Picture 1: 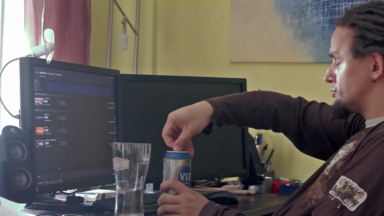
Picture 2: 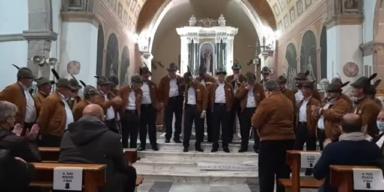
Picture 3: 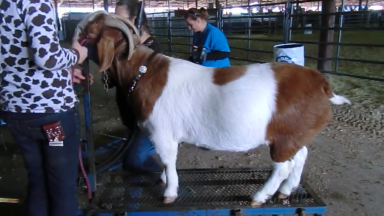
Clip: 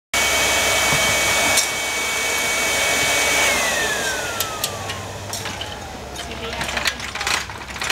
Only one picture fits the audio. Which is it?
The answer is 3